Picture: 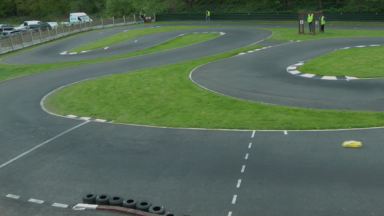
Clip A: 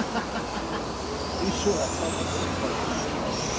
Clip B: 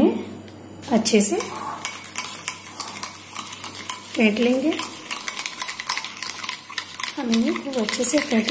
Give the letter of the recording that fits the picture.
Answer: A